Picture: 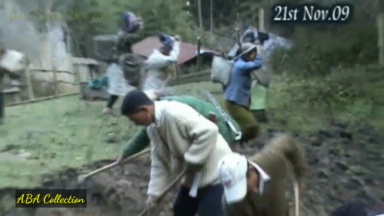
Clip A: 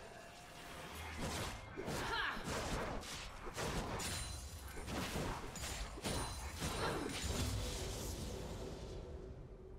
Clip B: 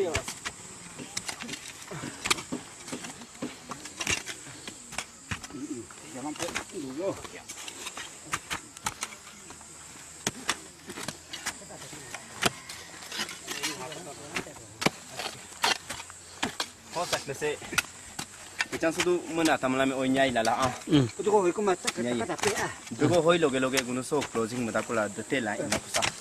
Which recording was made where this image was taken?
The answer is B